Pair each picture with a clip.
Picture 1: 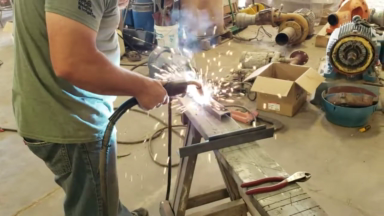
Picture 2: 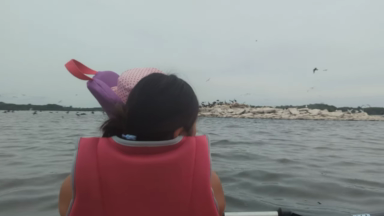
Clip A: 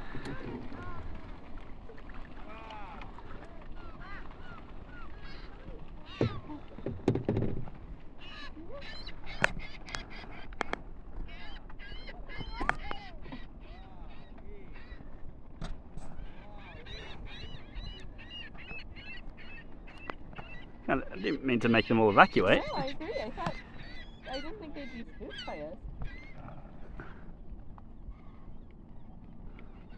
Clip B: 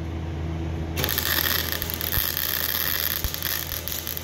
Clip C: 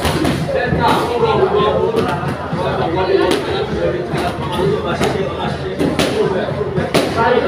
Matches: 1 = B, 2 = A